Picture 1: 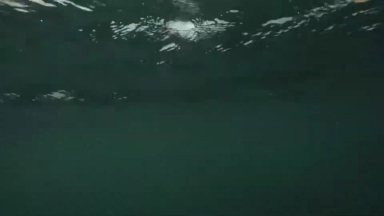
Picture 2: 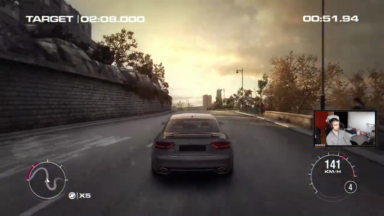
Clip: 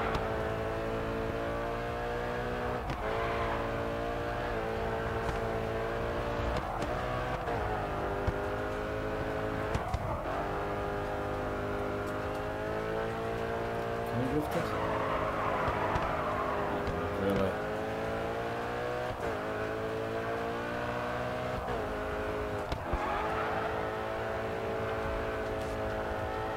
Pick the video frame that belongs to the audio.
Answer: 2